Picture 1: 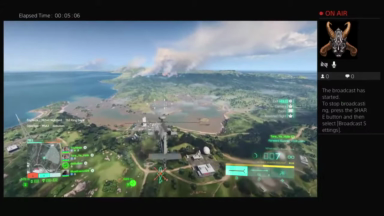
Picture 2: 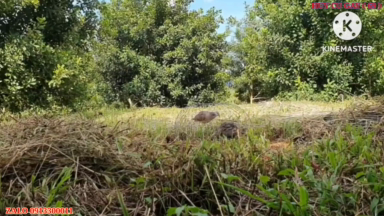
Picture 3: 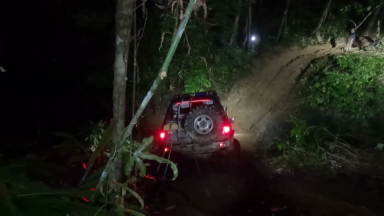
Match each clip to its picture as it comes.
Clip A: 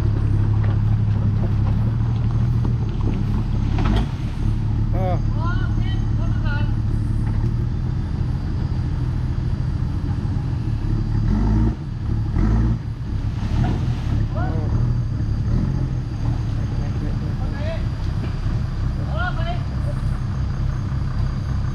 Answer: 3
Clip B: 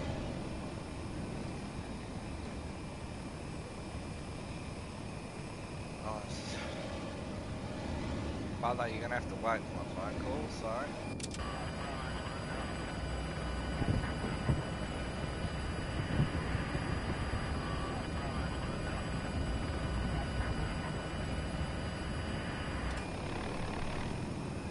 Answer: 1